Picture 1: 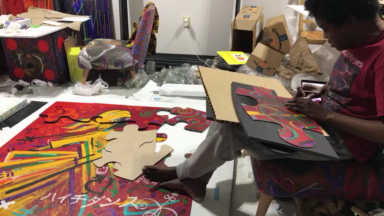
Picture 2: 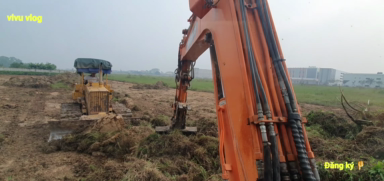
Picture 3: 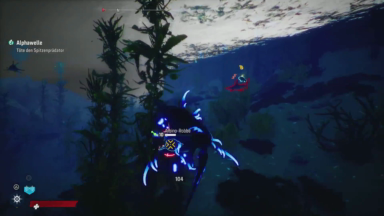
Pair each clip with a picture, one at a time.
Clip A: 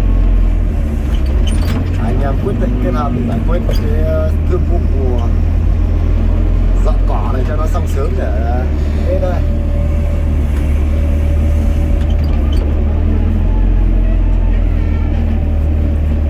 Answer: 2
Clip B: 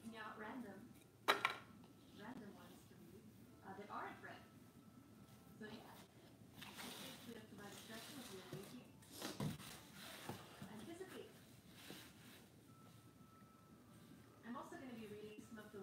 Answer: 1